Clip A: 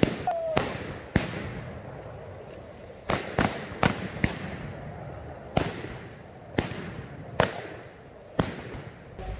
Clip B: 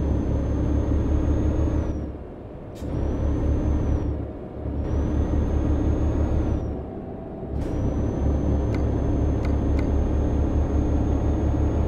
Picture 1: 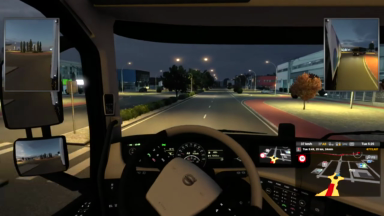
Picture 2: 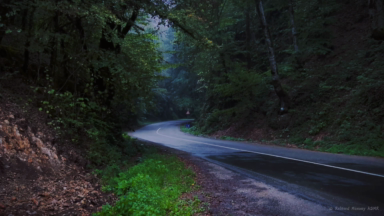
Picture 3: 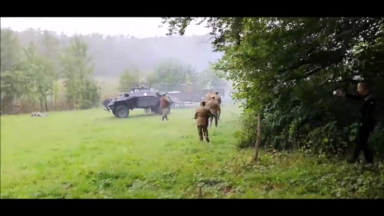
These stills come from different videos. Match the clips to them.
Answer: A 3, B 1